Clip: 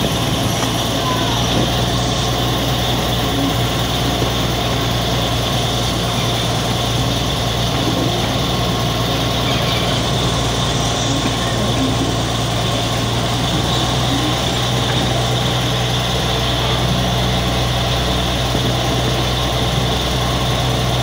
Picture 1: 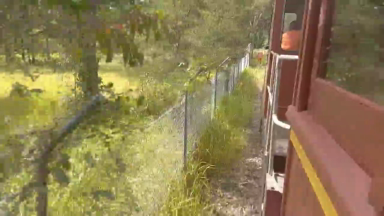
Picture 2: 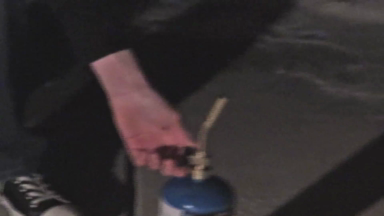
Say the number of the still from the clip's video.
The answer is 1